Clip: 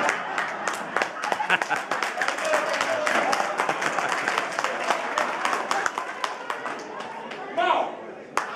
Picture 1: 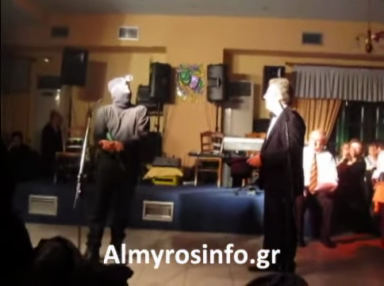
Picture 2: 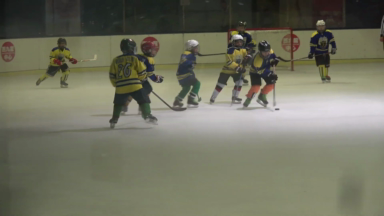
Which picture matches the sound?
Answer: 1